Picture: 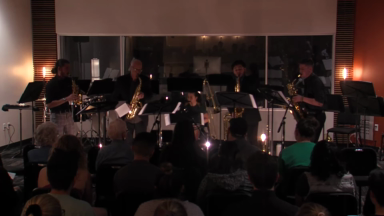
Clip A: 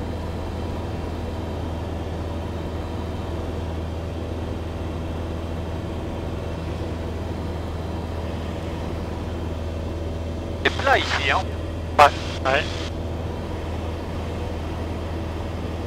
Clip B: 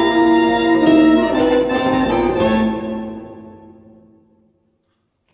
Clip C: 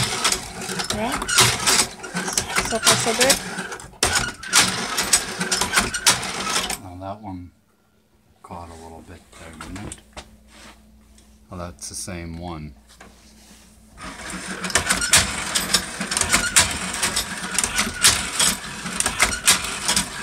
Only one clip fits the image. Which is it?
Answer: B